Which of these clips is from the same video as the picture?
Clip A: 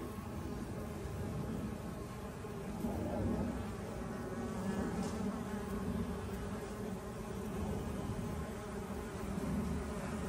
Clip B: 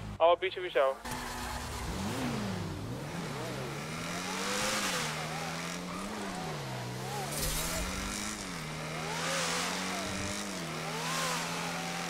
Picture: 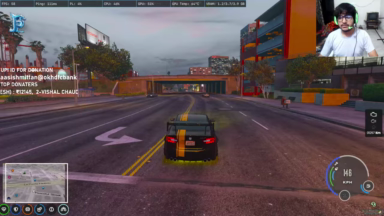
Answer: B